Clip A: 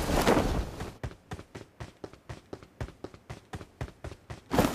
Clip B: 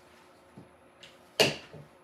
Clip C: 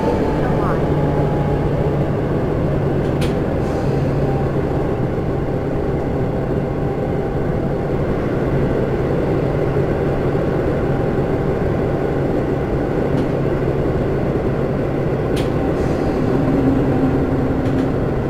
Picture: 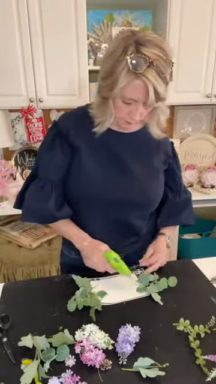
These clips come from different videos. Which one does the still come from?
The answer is B